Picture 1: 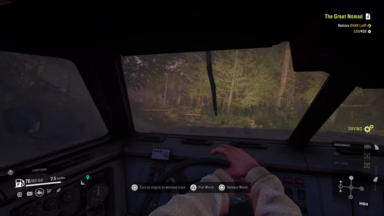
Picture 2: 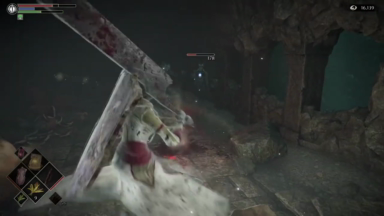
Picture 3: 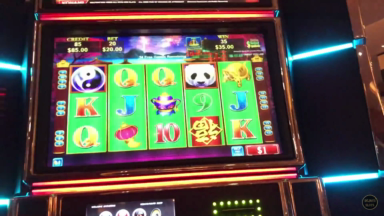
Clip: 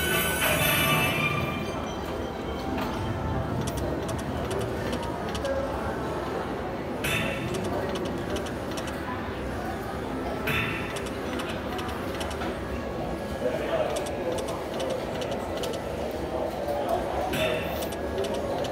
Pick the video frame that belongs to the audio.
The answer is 3